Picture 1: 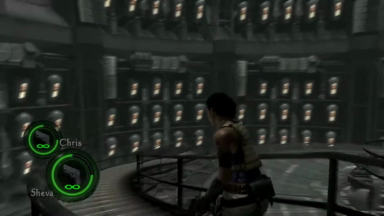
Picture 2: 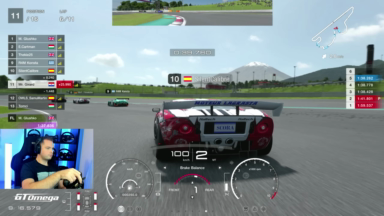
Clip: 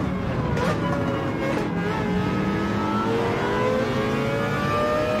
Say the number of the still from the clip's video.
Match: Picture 2